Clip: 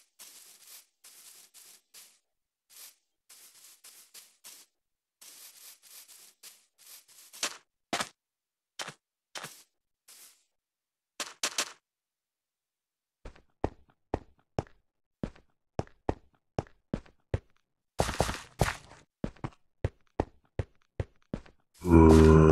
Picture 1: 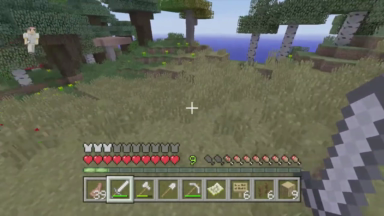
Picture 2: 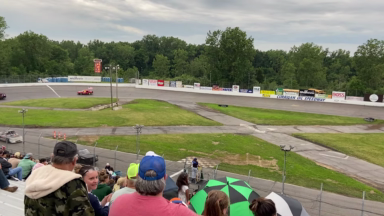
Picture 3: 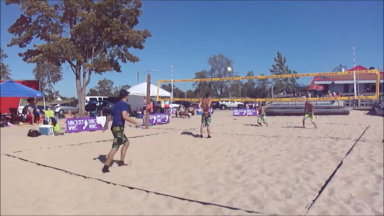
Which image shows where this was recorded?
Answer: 1